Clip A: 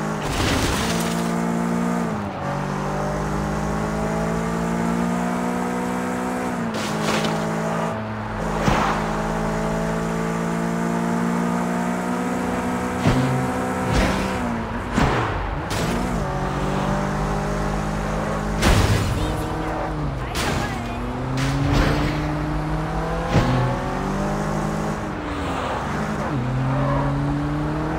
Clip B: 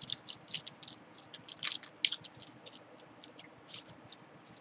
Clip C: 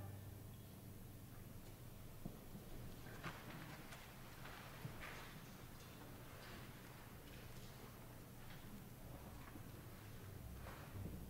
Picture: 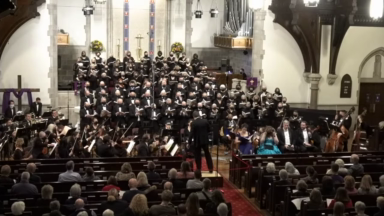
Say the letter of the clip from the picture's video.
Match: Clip C